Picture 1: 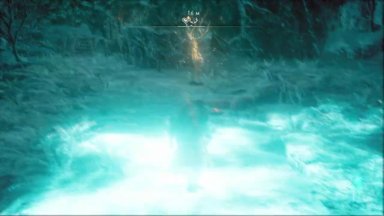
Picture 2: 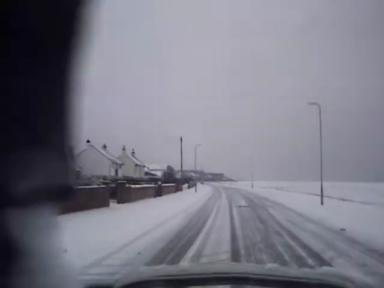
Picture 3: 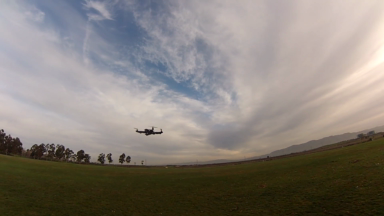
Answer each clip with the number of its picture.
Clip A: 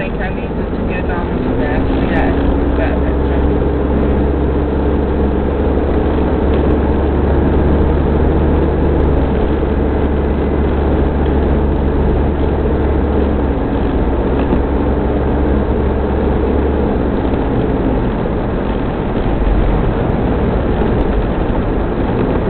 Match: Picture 2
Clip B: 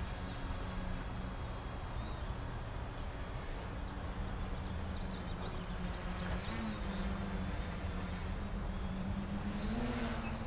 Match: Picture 3